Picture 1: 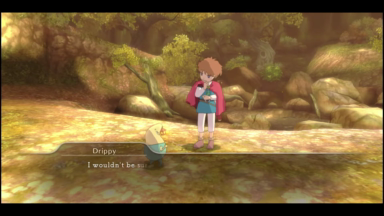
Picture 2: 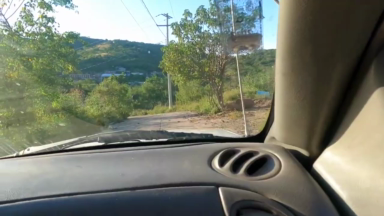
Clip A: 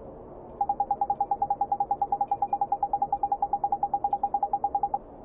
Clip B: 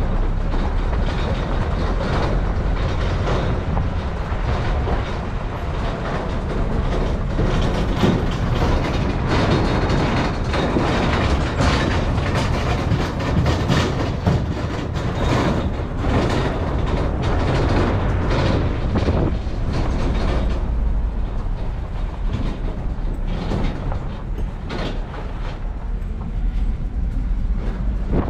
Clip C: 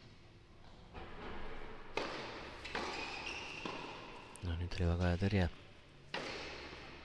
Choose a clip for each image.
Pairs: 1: A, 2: B